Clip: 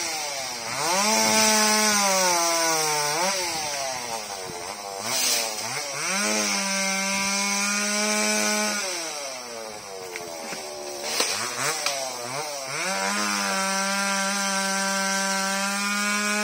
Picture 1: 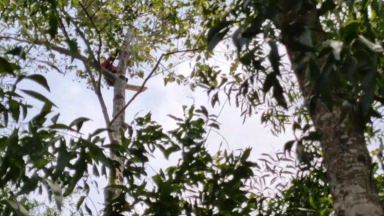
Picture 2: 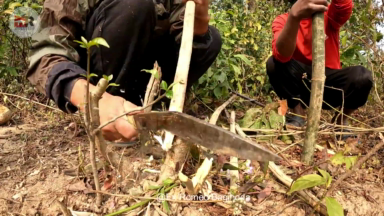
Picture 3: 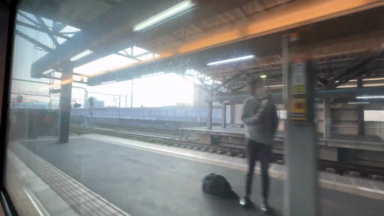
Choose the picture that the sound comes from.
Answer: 1